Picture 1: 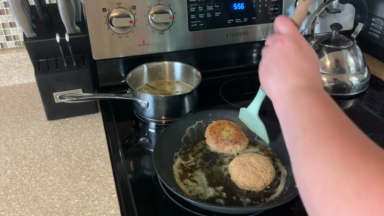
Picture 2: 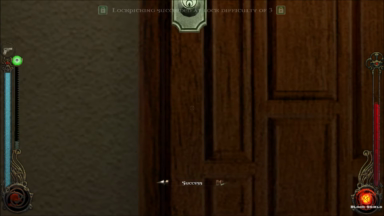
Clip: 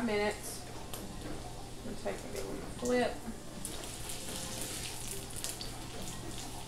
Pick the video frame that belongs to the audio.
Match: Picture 1